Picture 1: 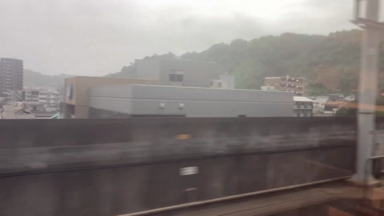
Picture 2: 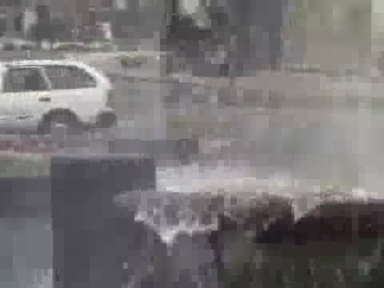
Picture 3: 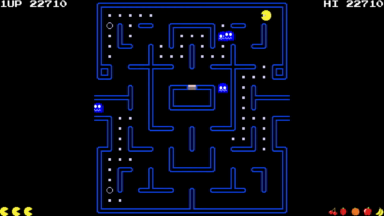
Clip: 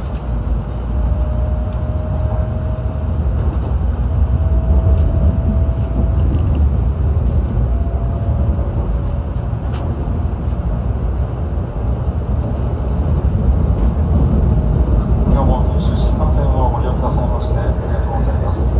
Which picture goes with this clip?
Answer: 1